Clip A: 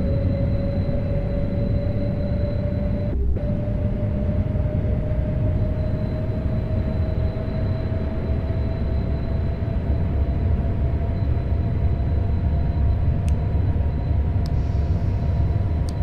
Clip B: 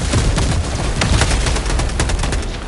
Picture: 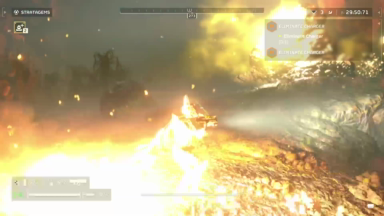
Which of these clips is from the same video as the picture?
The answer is B